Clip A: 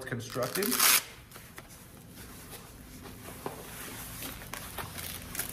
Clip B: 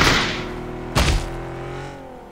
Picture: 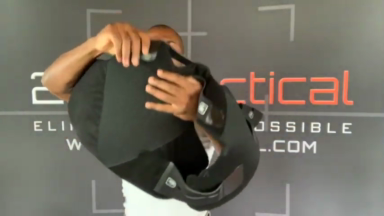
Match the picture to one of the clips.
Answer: A